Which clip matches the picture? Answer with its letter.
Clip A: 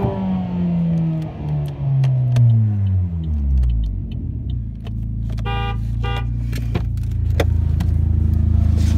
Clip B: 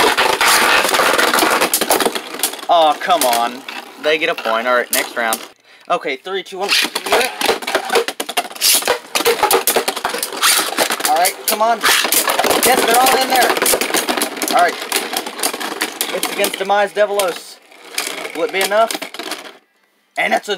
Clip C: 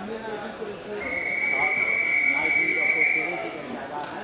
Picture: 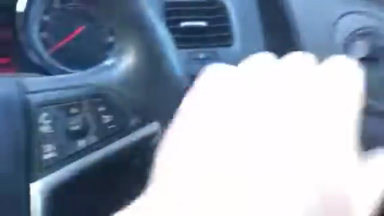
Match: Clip A